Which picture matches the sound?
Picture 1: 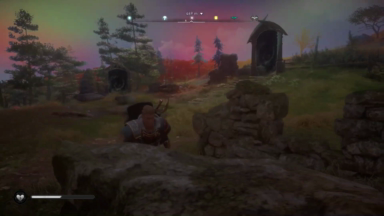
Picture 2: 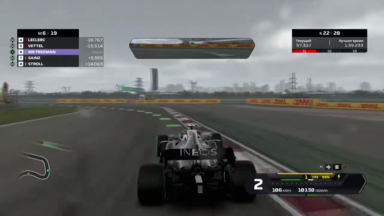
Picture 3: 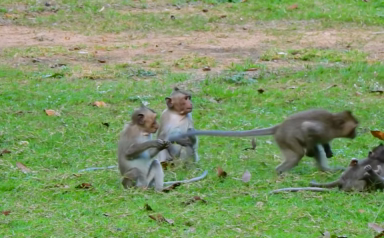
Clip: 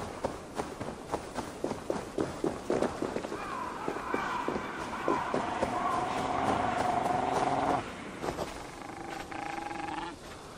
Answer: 1